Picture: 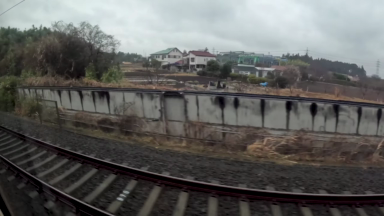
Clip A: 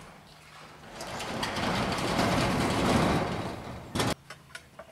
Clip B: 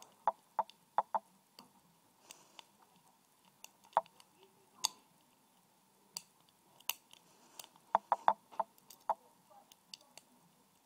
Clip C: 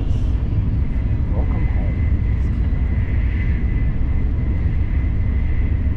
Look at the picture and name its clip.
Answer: C